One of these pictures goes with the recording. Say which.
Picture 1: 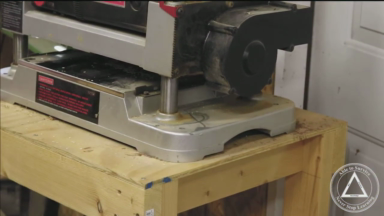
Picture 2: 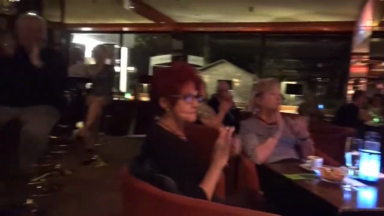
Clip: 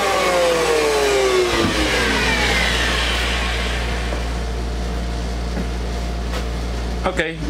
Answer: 1